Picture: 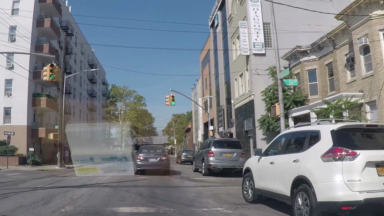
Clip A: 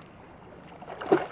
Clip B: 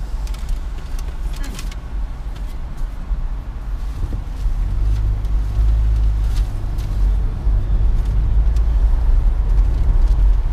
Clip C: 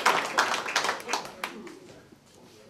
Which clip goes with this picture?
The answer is B